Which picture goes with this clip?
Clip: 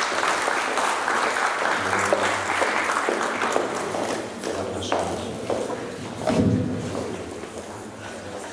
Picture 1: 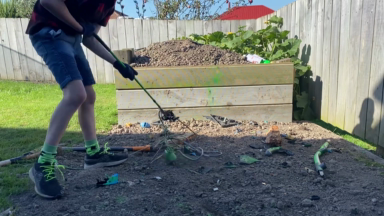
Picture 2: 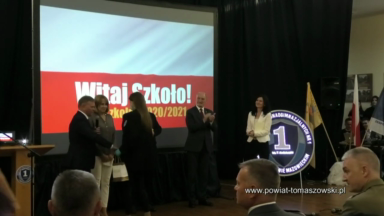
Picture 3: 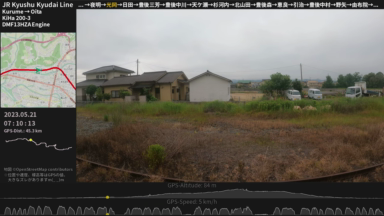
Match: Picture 2